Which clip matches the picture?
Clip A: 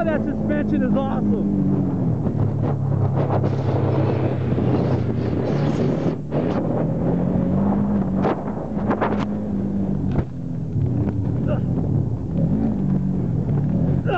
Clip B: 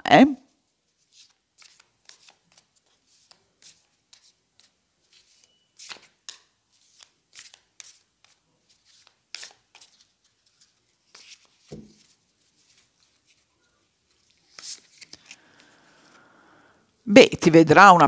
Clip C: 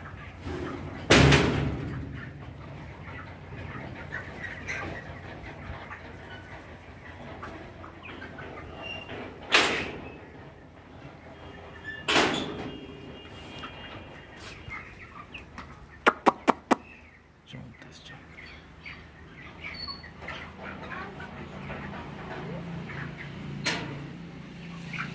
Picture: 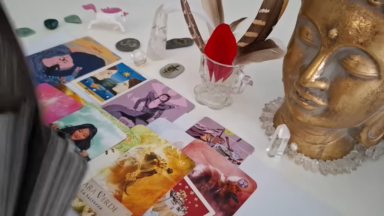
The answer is B